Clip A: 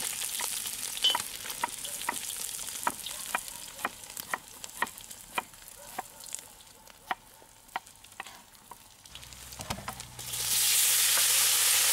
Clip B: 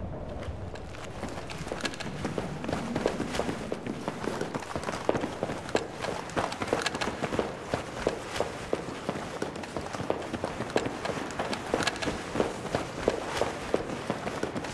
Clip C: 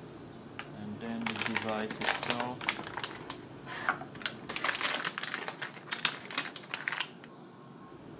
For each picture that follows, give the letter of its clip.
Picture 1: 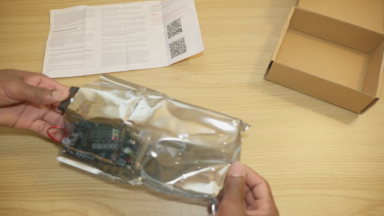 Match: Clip C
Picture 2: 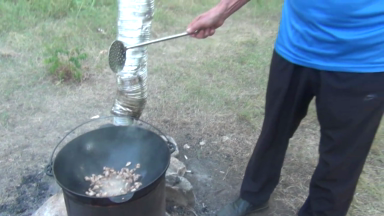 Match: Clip A